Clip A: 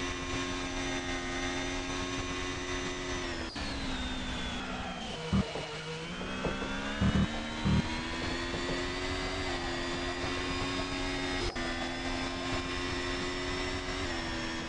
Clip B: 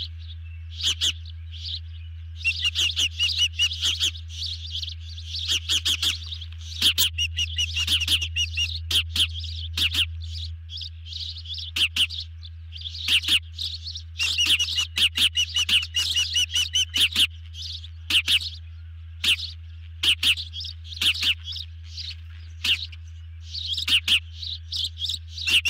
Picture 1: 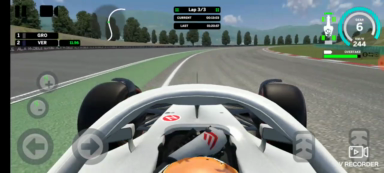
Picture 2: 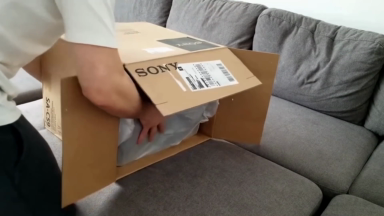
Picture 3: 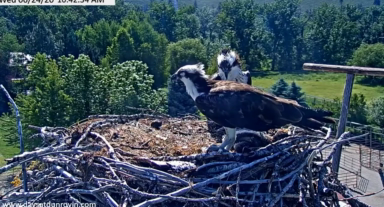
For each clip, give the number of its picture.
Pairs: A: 1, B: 3